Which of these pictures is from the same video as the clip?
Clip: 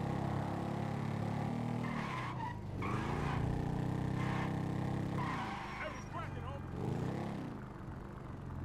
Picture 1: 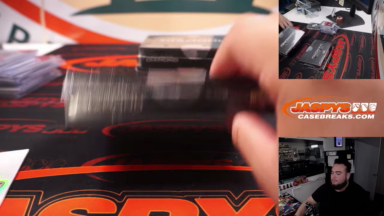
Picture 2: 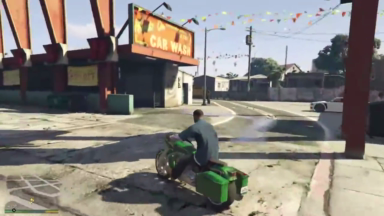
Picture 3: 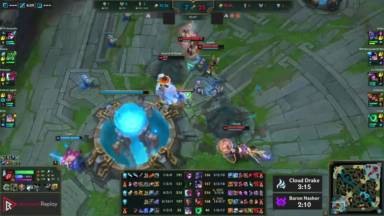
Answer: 2